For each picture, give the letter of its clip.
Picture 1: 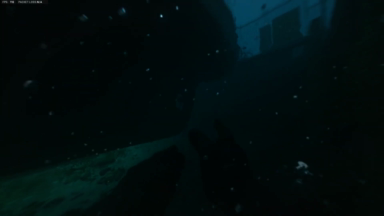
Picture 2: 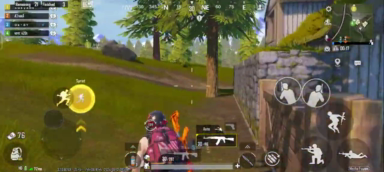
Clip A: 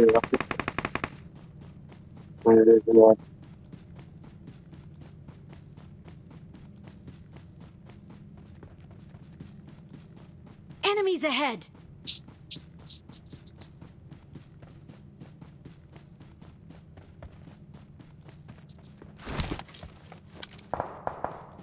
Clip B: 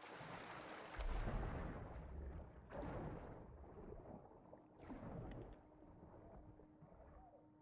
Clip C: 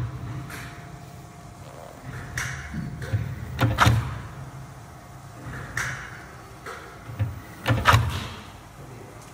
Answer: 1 B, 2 A